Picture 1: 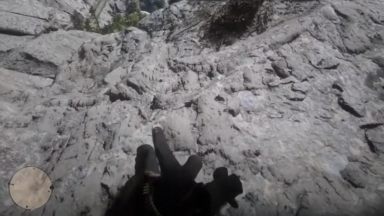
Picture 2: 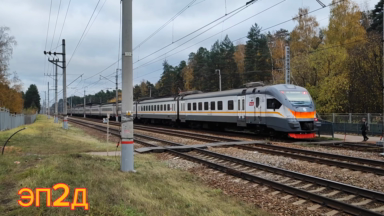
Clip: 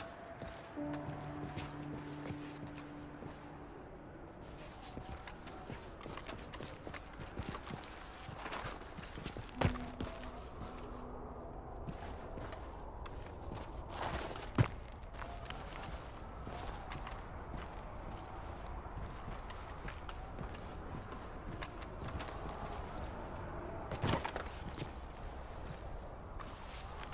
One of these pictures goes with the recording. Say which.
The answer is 1